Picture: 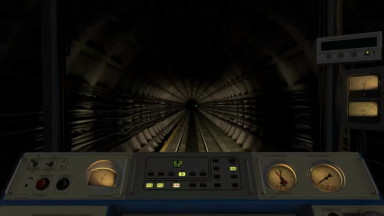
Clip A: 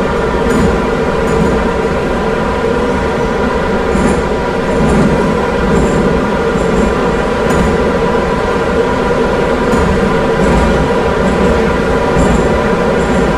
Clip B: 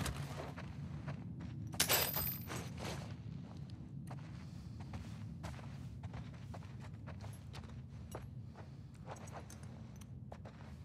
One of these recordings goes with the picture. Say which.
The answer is A